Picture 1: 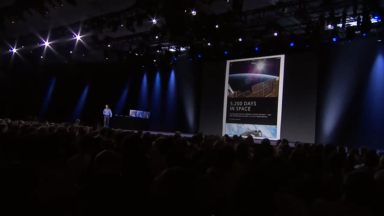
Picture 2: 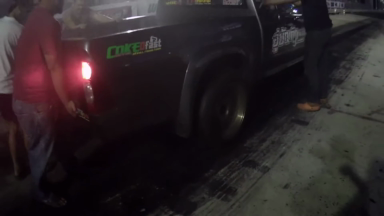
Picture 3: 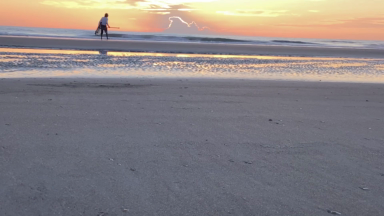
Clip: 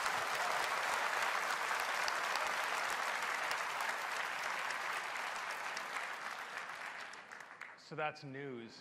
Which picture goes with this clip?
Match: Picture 1